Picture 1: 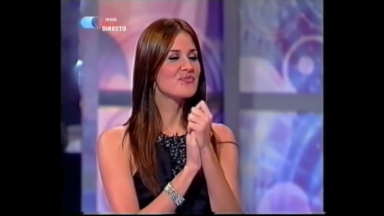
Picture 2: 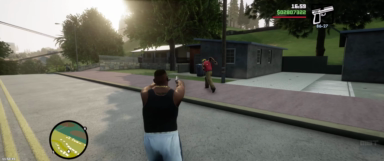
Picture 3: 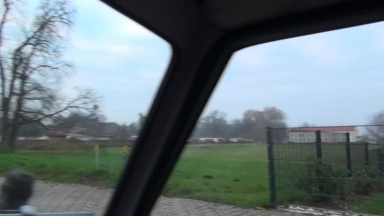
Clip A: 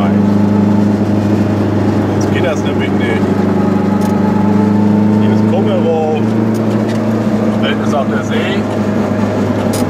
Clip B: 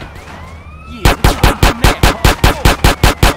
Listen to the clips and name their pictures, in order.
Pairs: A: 3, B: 2